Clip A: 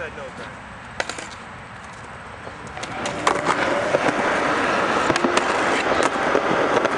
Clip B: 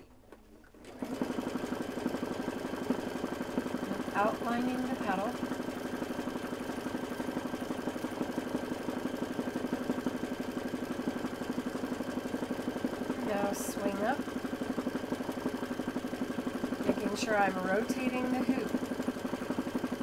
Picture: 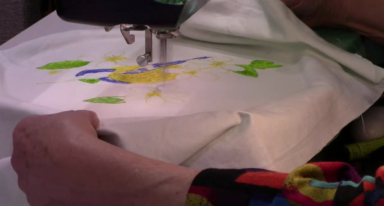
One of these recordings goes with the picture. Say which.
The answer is B